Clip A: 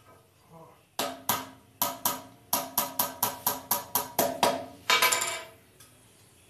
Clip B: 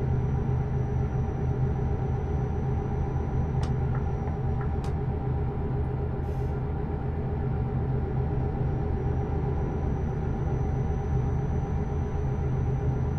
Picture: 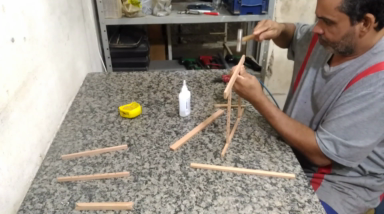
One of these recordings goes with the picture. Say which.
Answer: A